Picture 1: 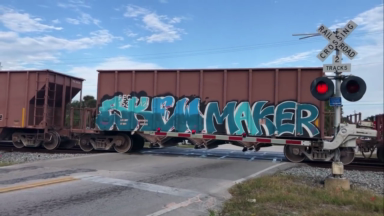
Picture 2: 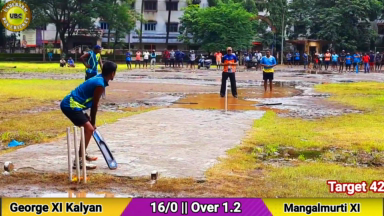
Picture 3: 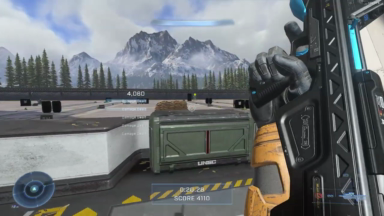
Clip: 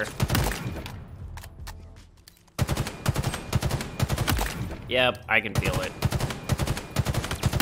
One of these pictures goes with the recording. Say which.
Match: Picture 3